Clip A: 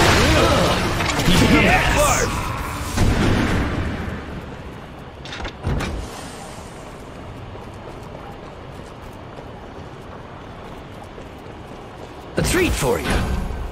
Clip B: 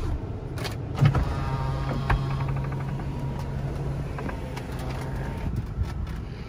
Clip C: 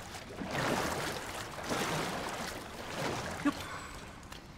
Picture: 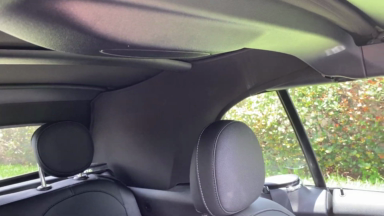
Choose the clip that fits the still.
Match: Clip B